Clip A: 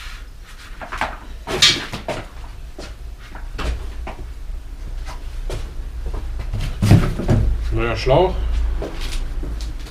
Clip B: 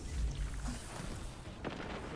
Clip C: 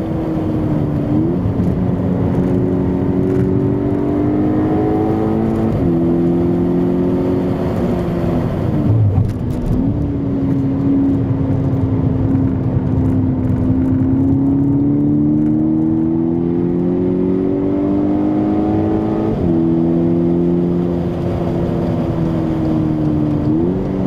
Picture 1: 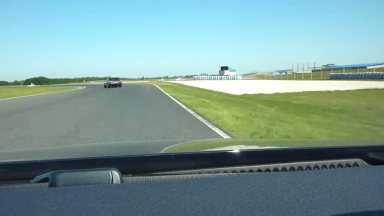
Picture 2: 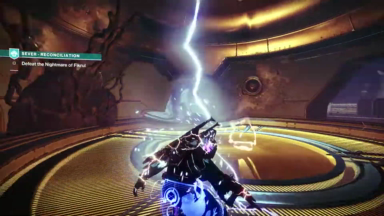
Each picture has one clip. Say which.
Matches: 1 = C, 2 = B